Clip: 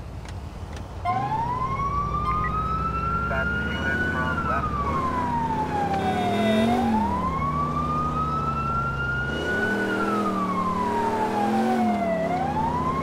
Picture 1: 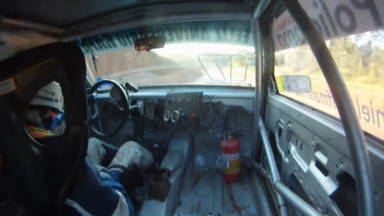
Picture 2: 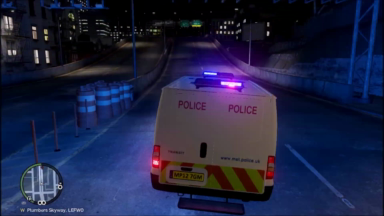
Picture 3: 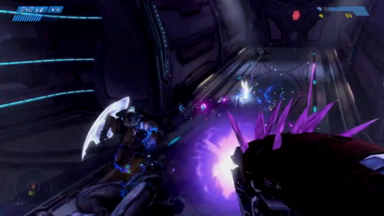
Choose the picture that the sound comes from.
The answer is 2